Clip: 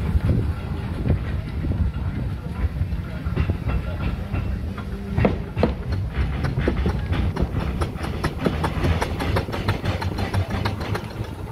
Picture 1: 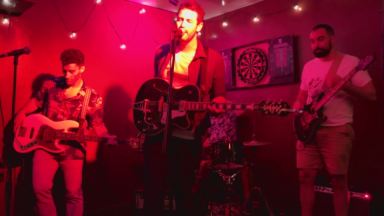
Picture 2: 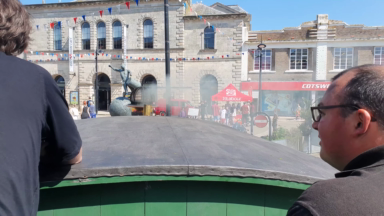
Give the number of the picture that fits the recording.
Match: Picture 2